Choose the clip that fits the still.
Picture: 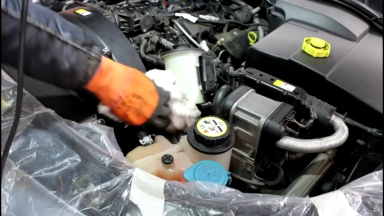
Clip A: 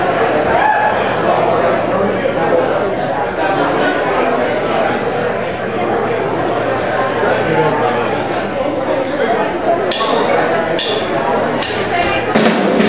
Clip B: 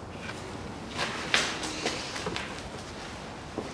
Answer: B